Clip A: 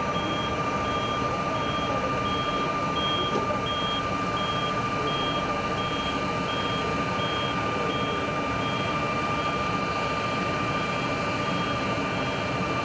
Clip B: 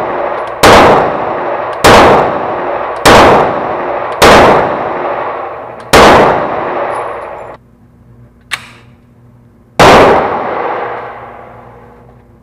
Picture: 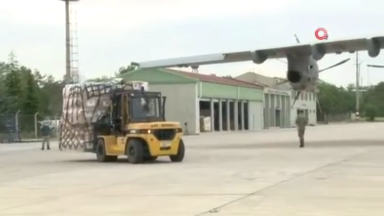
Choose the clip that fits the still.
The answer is A